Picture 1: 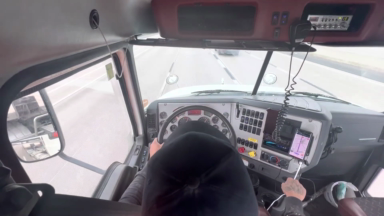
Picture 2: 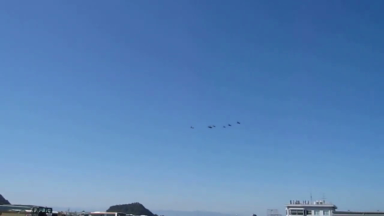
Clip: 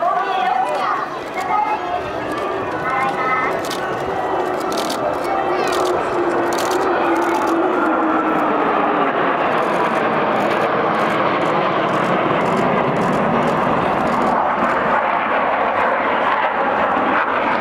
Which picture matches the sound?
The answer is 2